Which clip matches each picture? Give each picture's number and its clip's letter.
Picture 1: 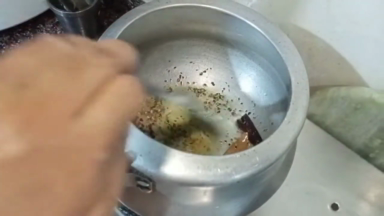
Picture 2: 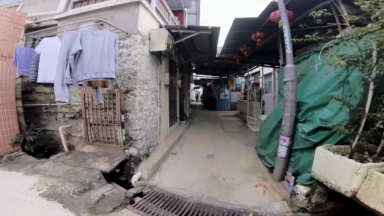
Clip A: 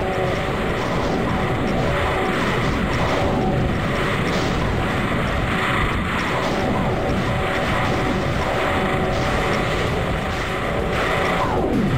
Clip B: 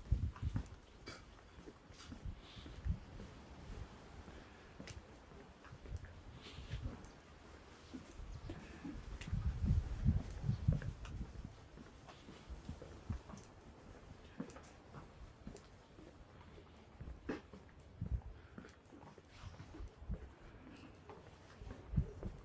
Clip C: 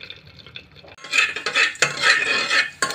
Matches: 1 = C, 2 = B